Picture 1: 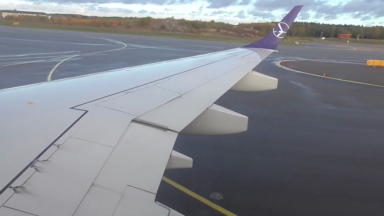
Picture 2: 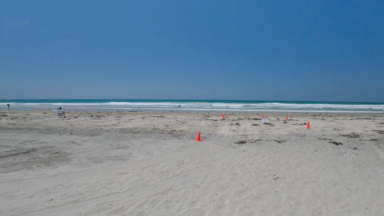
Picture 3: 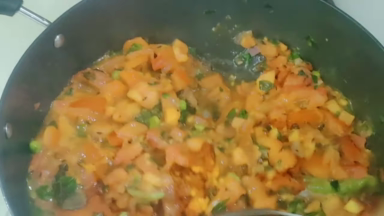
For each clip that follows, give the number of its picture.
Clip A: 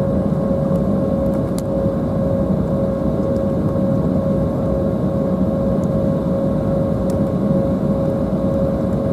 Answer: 1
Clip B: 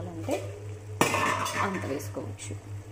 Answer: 3